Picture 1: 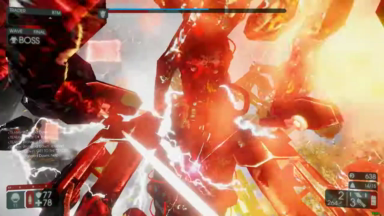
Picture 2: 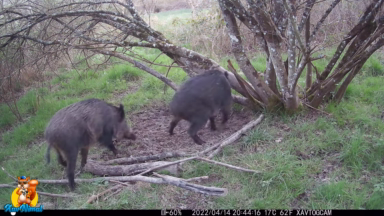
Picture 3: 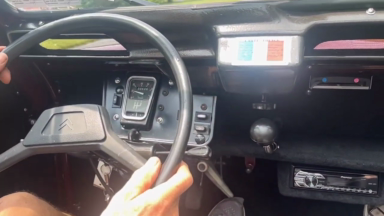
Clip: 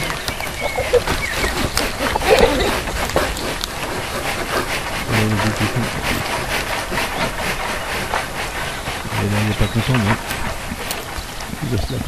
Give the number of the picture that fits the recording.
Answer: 2